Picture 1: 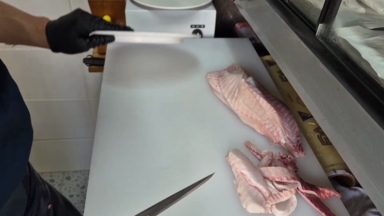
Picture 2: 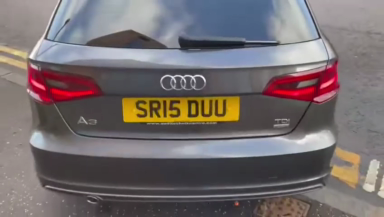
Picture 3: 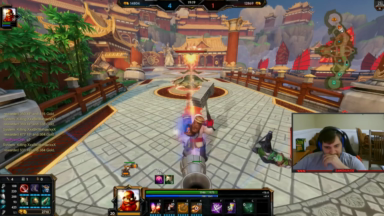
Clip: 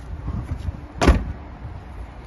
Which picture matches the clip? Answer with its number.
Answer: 2